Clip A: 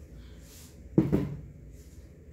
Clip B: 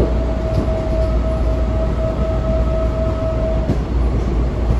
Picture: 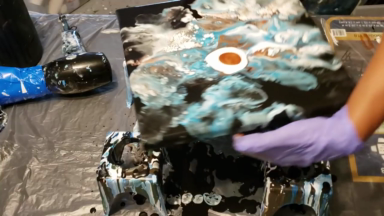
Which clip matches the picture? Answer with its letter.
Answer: A